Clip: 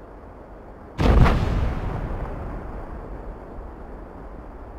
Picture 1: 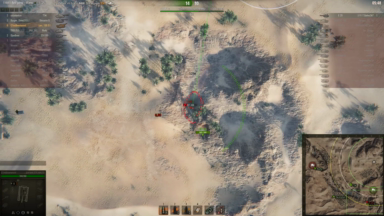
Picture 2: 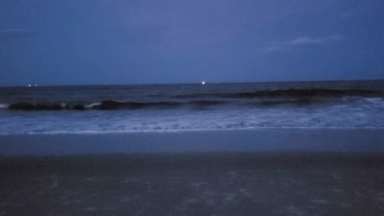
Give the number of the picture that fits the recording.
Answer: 1